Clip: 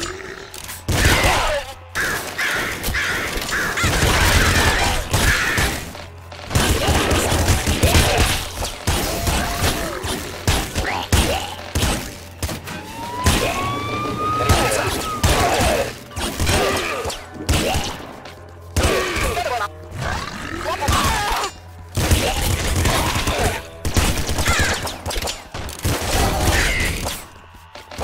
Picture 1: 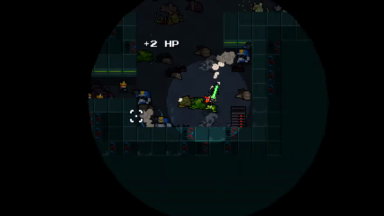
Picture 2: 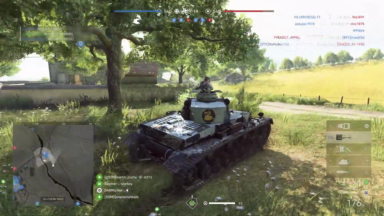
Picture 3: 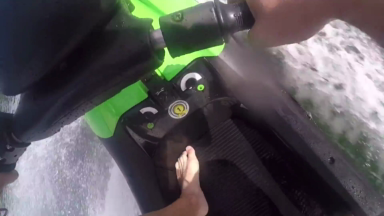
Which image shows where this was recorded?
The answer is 1